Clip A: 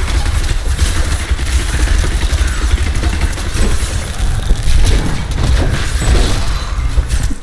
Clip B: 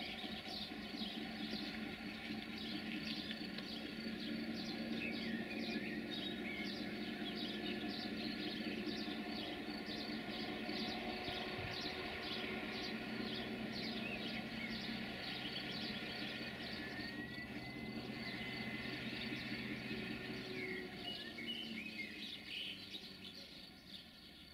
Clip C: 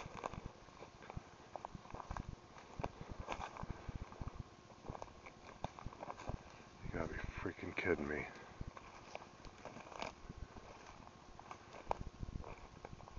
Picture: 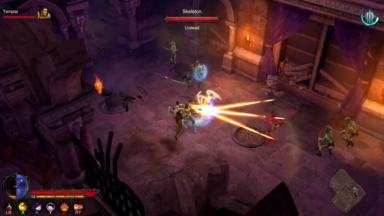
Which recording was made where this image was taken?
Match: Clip A